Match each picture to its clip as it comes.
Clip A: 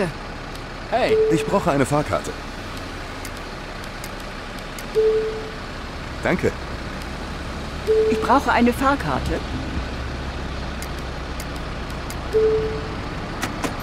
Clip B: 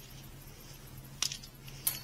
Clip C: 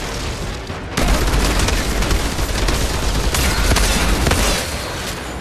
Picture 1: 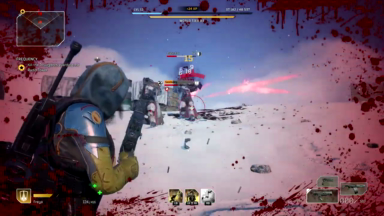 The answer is C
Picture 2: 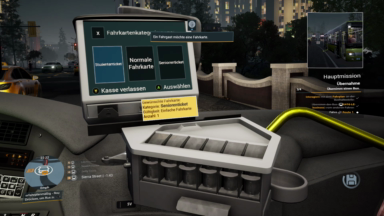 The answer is A